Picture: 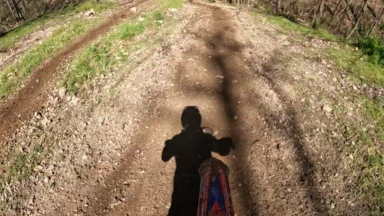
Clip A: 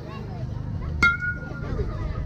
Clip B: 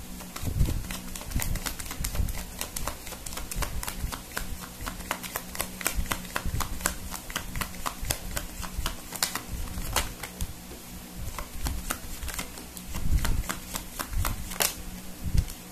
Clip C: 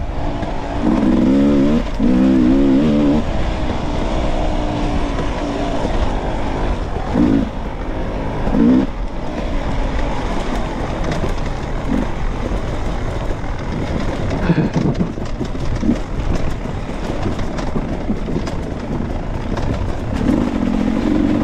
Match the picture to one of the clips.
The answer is C